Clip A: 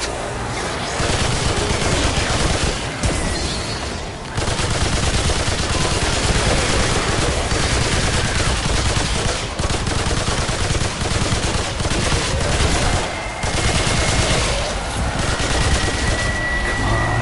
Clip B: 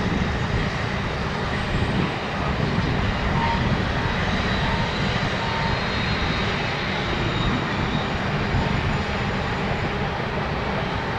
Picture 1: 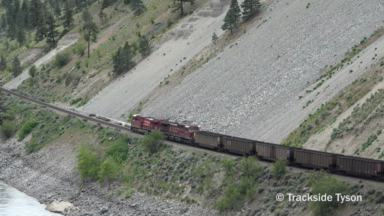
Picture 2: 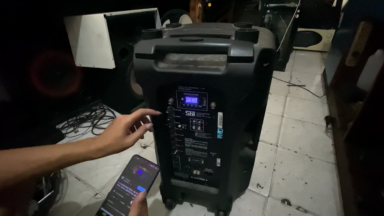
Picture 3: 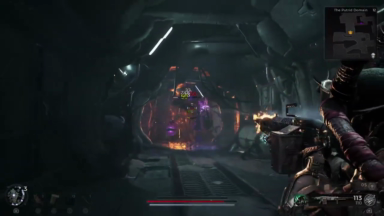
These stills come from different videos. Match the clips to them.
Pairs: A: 3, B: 1